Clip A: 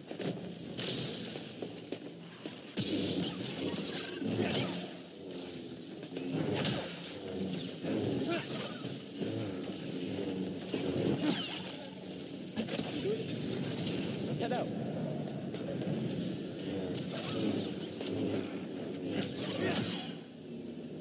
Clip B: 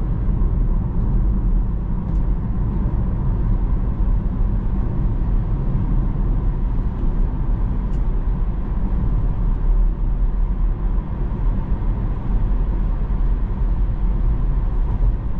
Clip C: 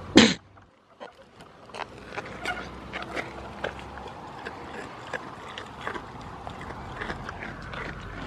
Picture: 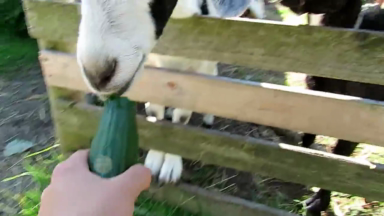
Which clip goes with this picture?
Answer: C